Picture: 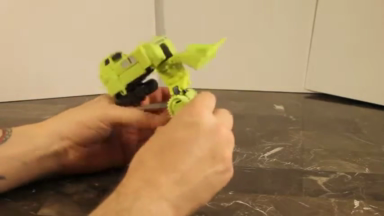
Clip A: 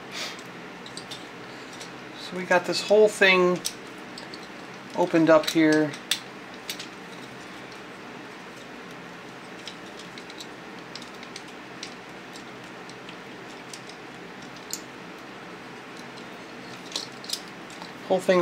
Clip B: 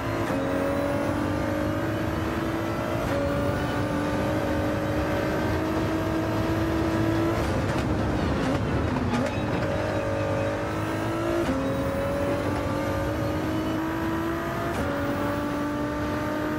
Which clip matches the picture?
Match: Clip A